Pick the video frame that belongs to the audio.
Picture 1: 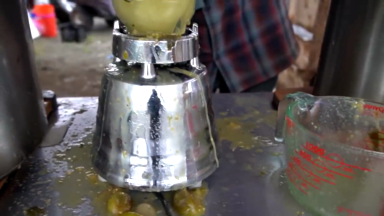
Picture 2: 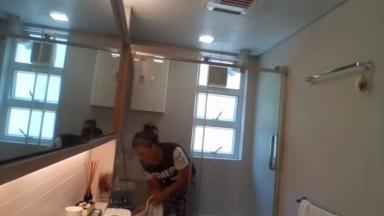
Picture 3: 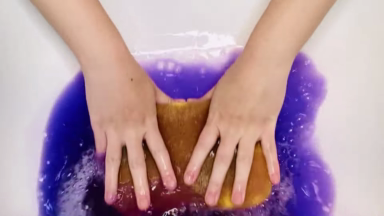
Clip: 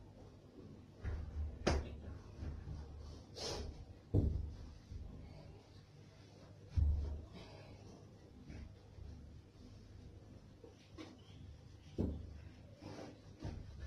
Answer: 2